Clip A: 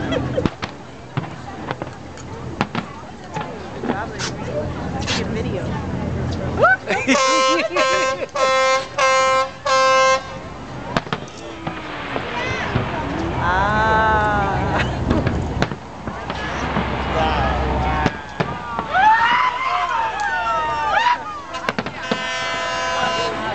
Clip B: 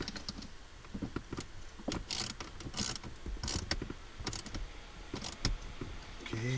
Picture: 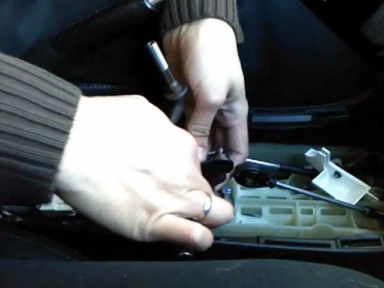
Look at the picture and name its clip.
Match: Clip B